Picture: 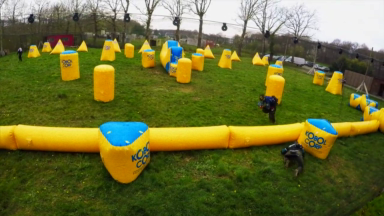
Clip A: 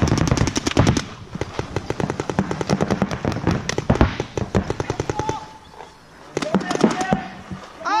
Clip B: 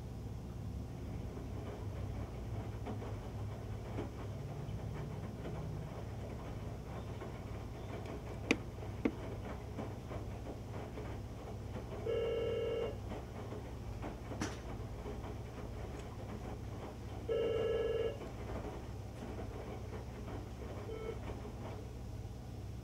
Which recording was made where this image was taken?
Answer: A